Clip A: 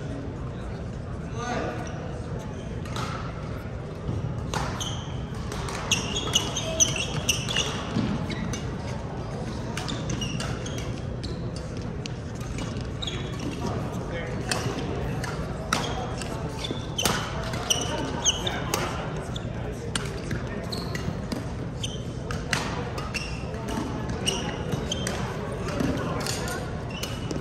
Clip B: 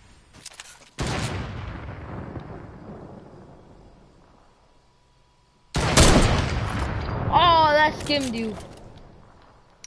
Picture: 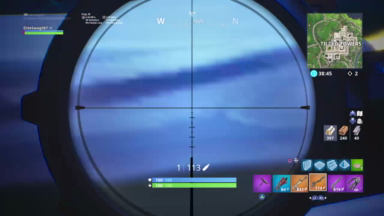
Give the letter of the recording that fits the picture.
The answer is B